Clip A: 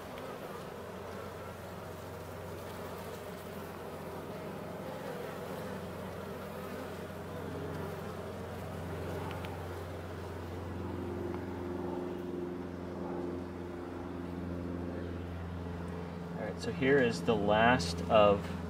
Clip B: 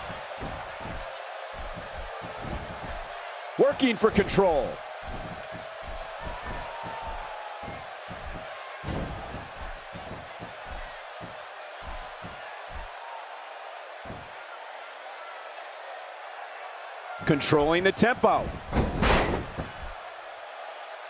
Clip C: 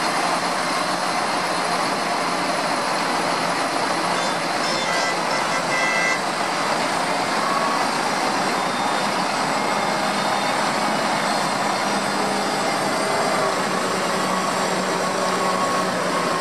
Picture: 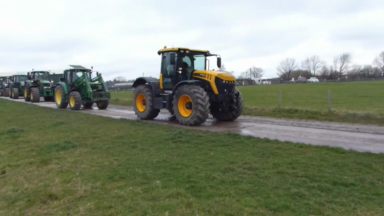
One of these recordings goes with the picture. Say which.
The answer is C